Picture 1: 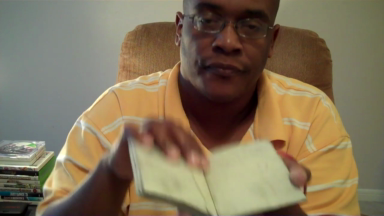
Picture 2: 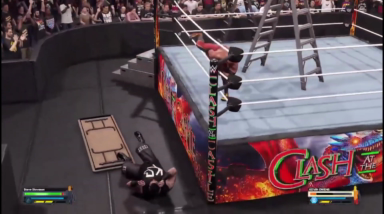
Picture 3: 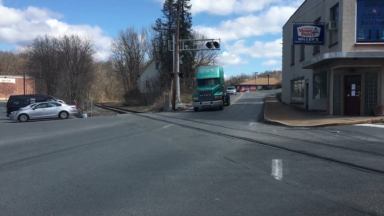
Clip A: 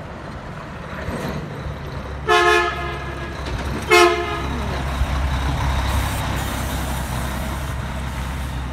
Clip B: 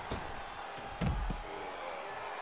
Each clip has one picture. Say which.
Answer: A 3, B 2